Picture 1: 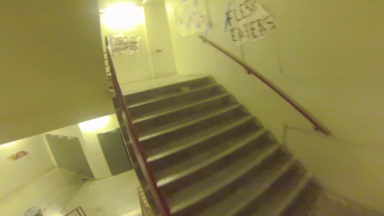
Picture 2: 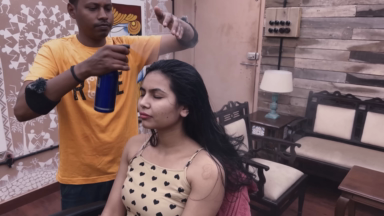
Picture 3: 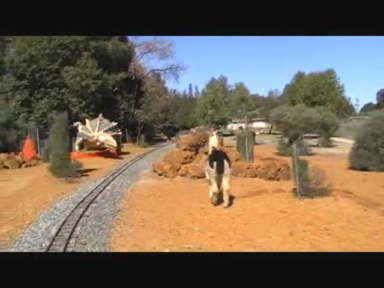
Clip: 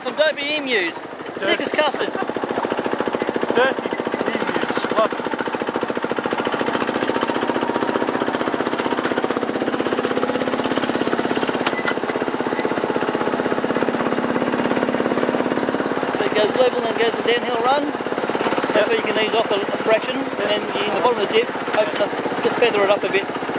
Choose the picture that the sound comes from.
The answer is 3